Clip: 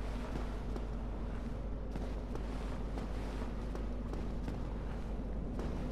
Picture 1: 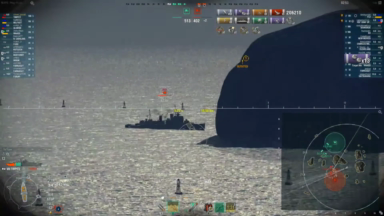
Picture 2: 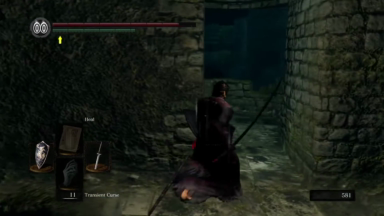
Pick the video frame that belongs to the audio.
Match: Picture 2